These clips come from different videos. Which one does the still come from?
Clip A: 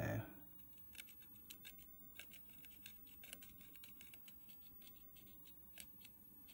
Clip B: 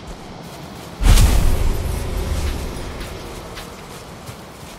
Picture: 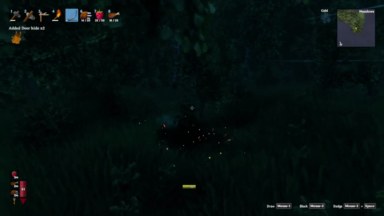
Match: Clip B